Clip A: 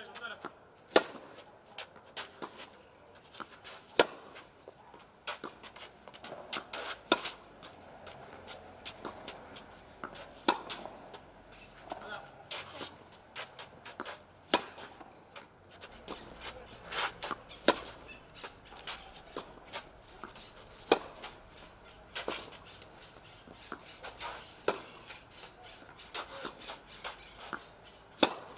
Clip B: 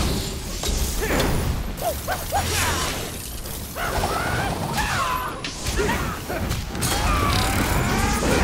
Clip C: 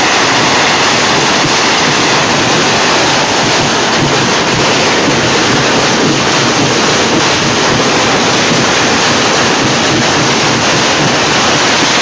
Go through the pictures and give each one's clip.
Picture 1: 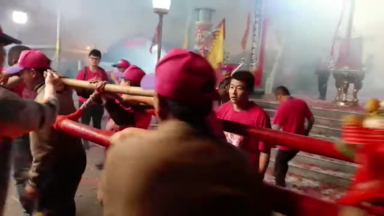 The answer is C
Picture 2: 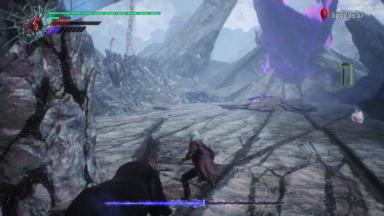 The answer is B